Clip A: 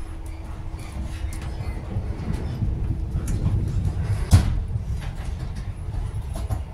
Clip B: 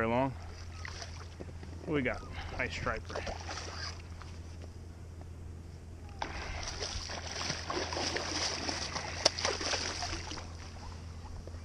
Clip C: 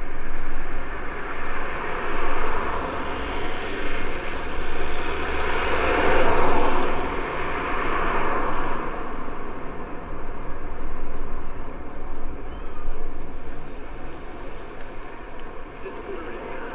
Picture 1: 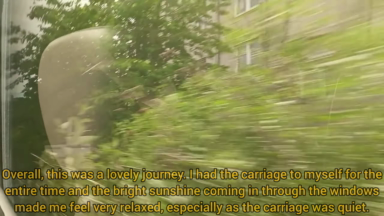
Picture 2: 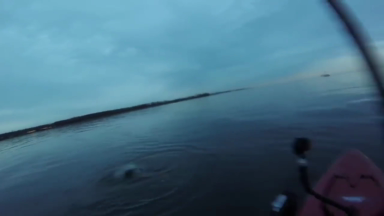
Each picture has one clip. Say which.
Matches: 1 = A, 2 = B